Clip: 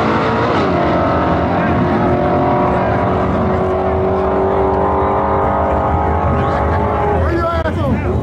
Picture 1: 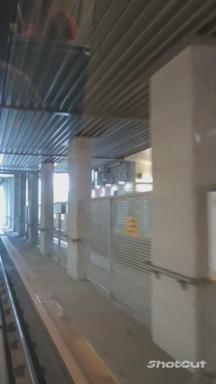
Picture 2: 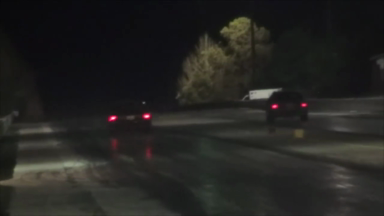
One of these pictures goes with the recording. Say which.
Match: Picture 2